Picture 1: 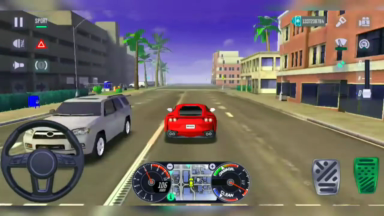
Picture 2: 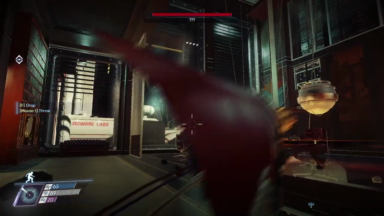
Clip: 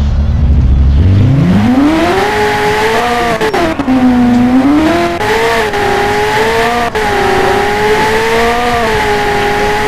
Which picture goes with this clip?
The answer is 1